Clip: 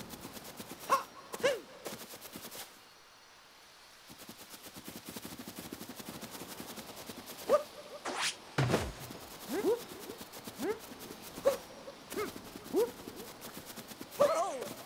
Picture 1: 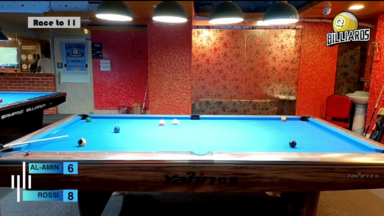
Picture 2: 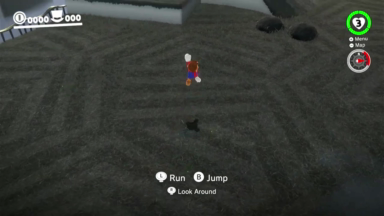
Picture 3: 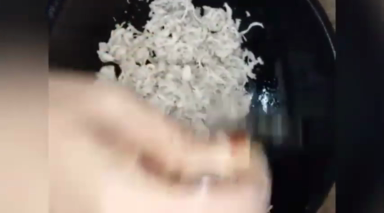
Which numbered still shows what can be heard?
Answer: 2